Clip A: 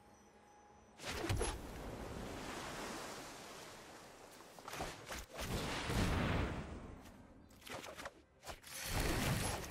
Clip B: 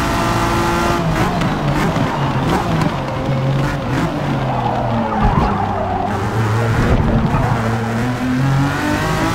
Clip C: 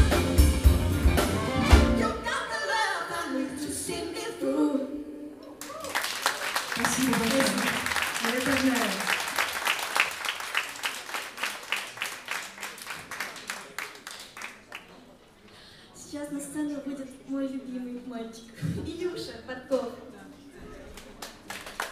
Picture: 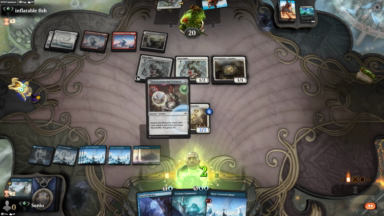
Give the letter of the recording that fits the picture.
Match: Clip A